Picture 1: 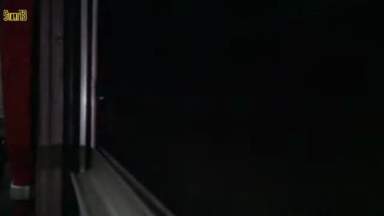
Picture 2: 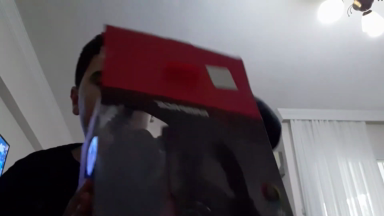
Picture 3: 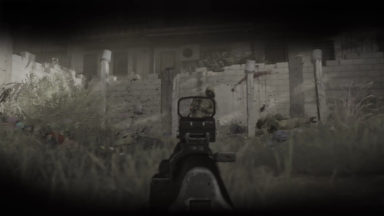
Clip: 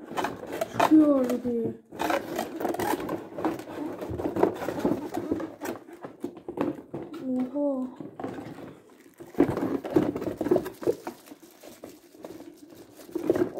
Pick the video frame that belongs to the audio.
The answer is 2